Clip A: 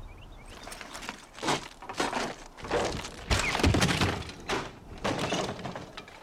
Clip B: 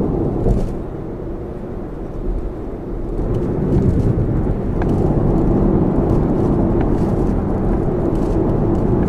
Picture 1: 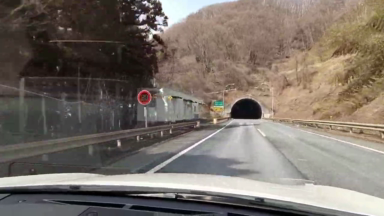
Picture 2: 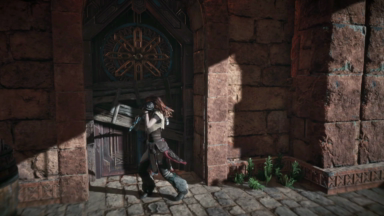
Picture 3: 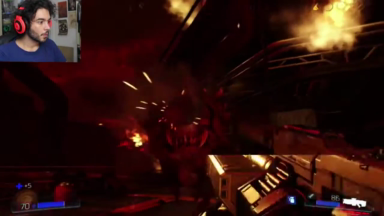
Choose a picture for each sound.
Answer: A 2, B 1